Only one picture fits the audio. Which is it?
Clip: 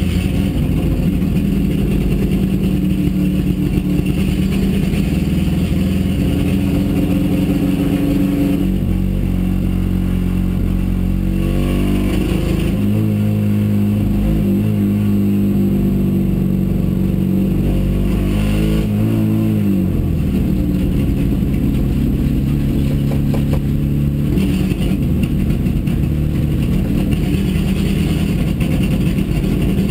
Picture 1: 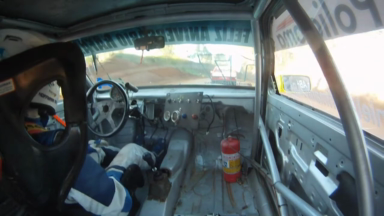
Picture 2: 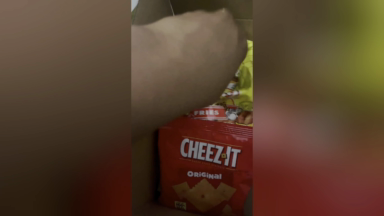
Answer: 1